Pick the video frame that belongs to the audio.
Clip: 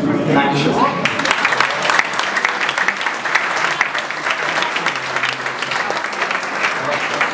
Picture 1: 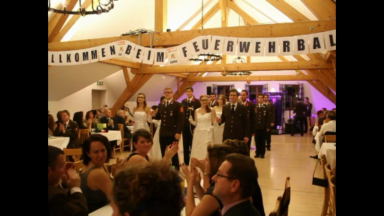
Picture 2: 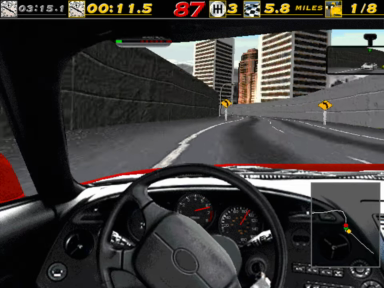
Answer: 1